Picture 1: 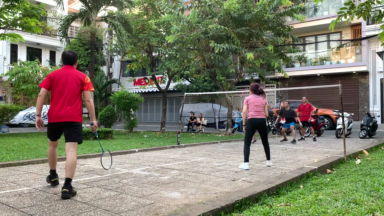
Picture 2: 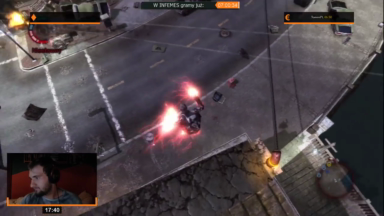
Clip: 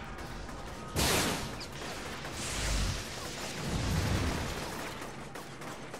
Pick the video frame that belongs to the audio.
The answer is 2